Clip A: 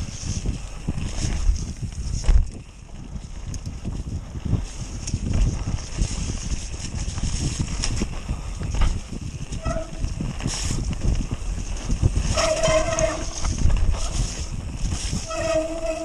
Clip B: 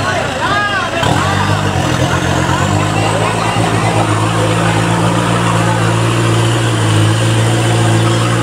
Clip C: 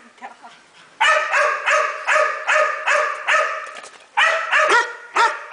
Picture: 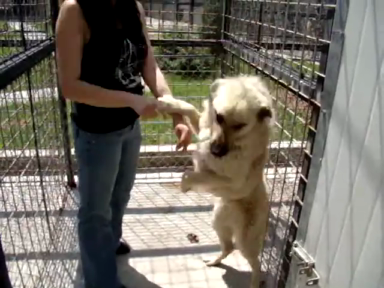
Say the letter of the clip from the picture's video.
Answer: C